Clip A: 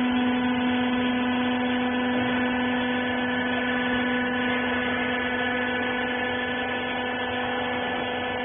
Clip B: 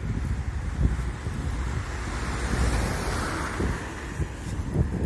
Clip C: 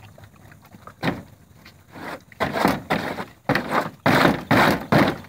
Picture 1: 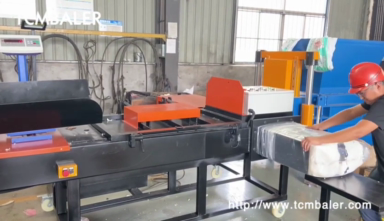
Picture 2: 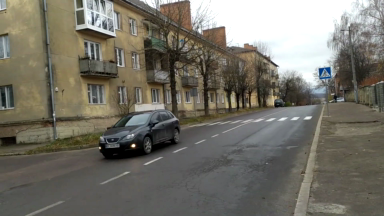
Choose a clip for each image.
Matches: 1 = A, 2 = B